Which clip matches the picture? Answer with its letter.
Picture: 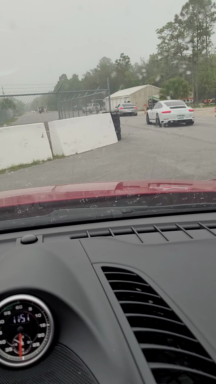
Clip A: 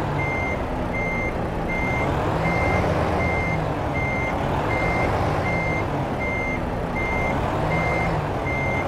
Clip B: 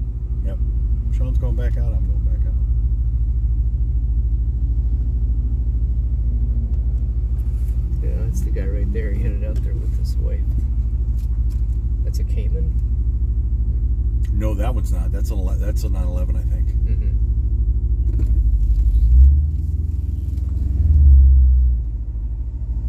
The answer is B